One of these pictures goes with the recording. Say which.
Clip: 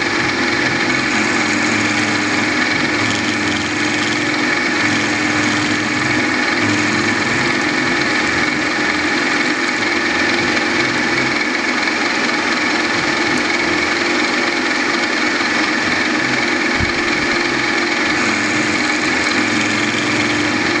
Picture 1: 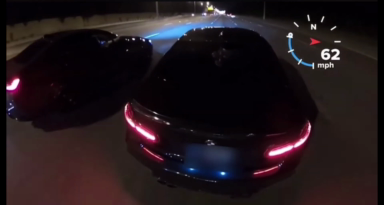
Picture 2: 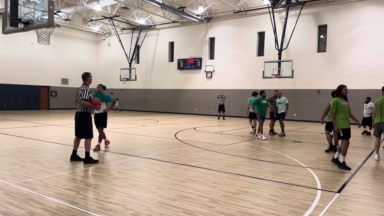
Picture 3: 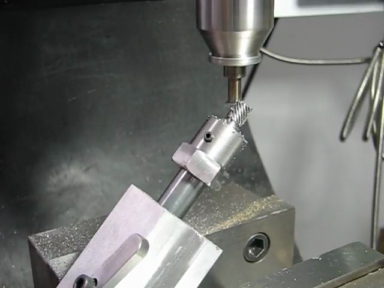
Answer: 3